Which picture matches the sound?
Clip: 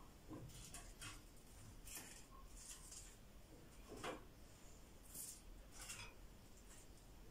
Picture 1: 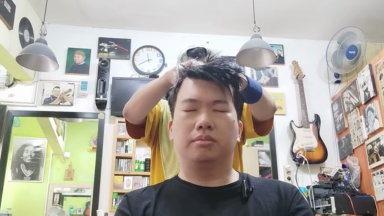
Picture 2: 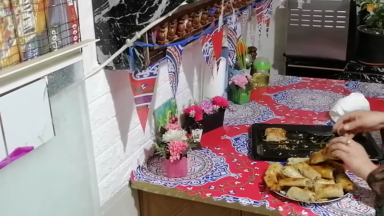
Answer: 2